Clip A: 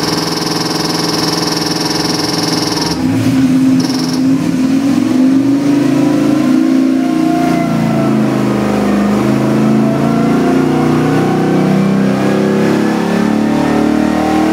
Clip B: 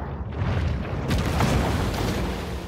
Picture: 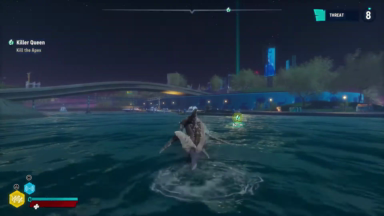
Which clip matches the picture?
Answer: B